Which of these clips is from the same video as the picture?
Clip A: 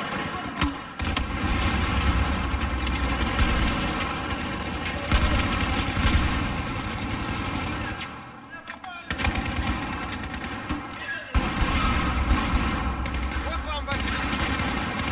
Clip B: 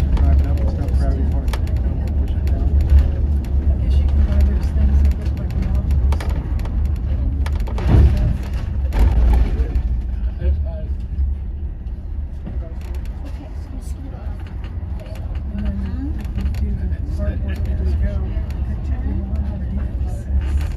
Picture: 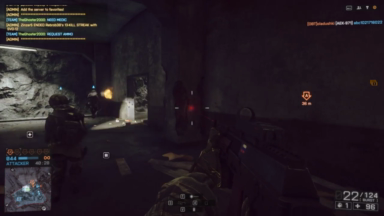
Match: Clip A